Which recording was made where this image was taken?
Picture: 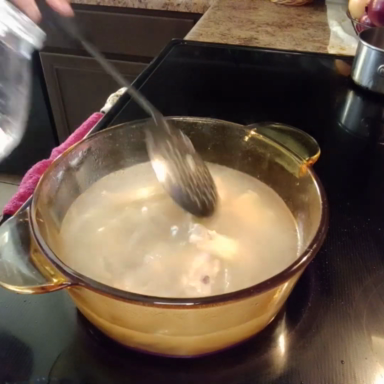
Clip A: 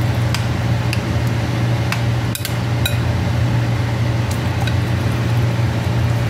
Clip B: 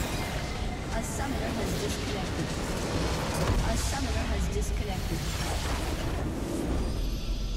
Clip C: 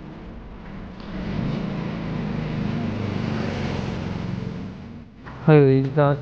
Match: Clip A